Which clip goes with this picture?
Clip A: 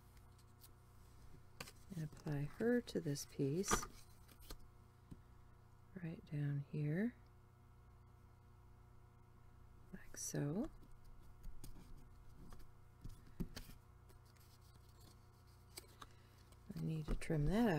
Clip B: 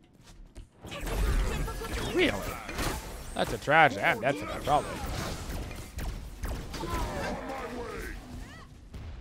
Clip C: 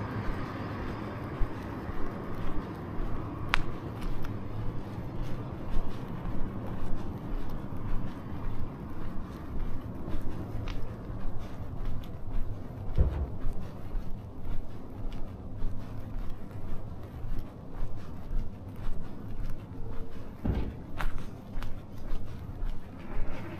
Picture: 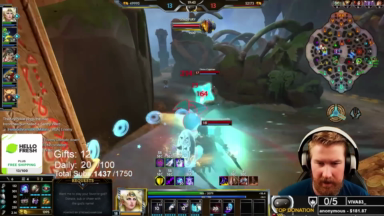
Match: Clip B